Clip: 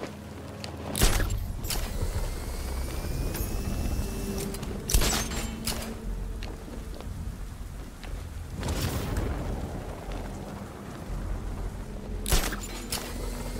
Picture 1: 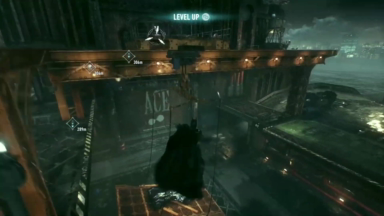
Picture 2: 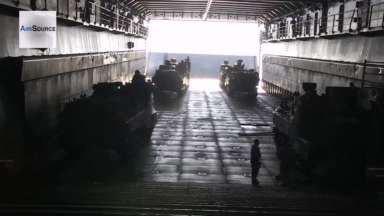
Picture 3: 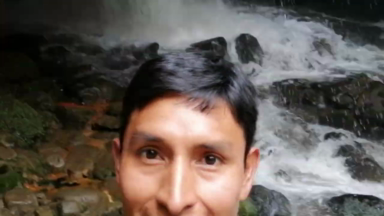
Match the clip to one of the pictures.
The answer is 1